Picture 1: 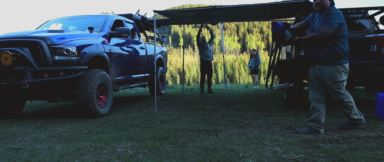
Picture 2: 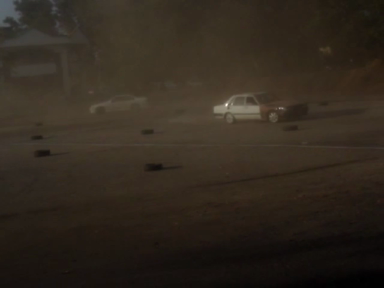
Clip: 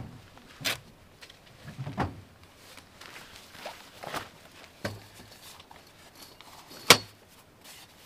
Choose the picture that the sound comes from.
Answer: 1